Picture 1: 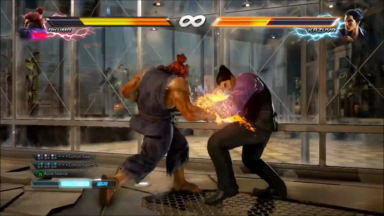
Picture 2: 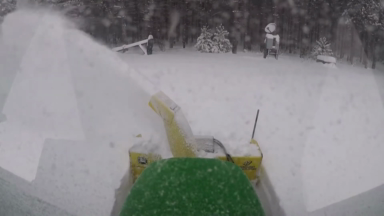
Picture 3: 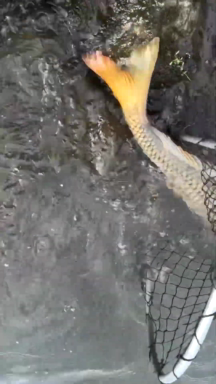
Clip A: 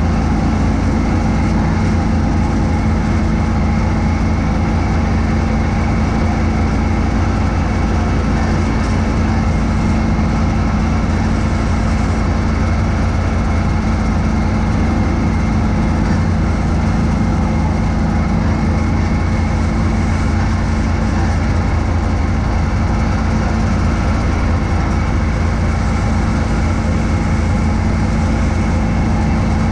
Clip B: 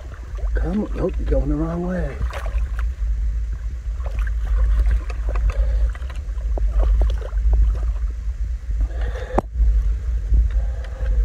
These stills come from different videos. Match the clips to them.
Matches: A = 2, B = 3